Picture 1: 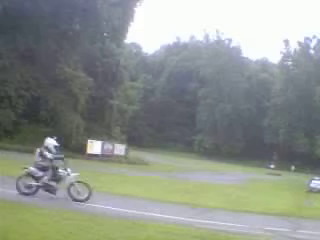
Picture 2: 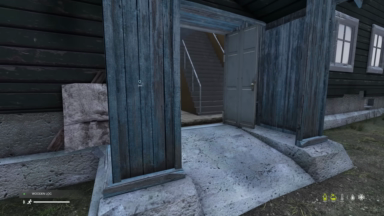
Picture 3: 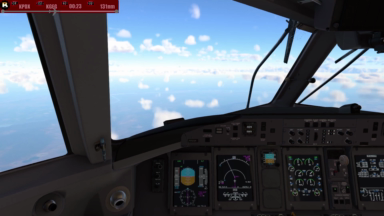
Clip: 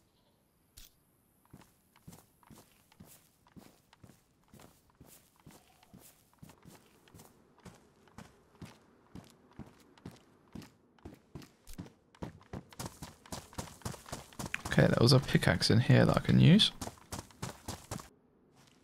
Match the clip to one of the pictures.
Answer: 2